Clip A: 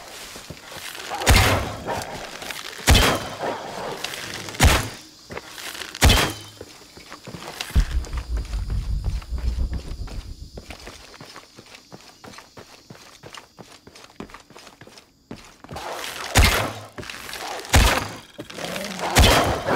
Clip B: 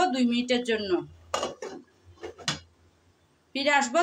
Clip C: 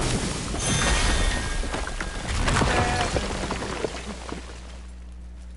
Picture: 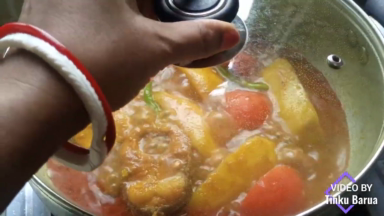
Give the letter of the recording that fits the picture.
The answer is B